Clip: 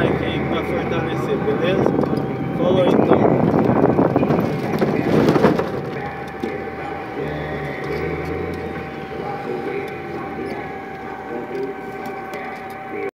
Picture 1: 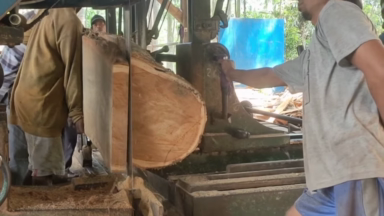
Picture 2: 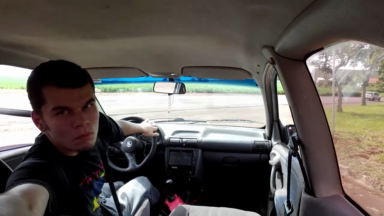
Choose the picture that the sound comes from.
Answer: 2